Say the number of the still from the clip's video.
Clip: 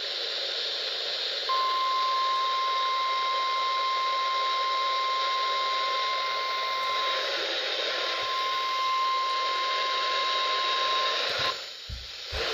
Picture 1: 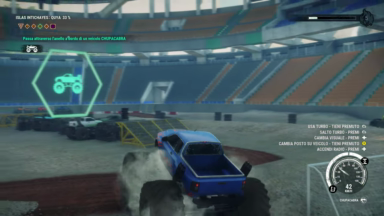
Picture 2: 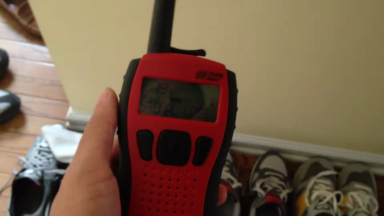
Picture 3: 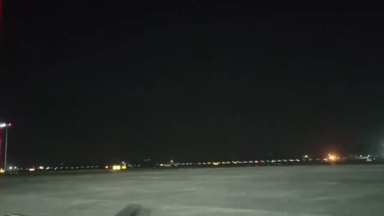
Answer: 2